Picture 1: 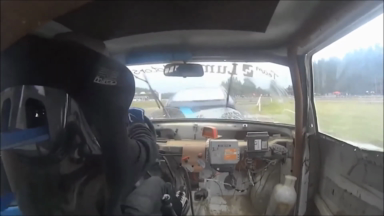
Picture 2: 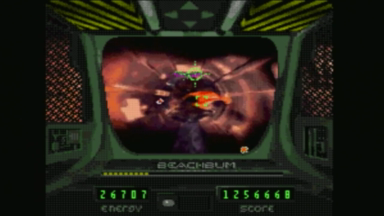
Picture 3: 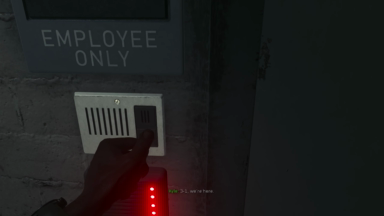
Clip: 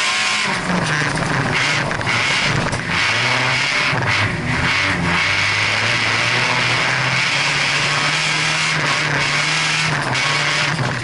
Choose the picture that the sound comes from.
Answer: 1